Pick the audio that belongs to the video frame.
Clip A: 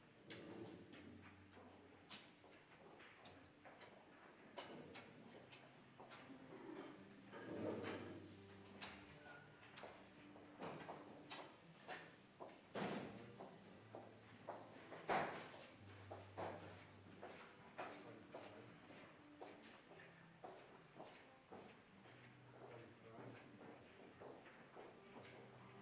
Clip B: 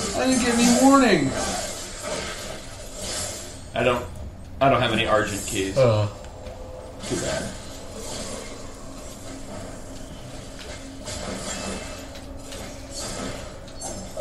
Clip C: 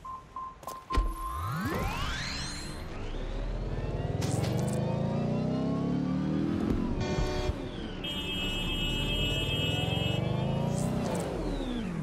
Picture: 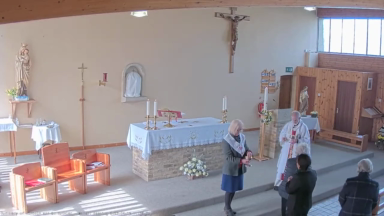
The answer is A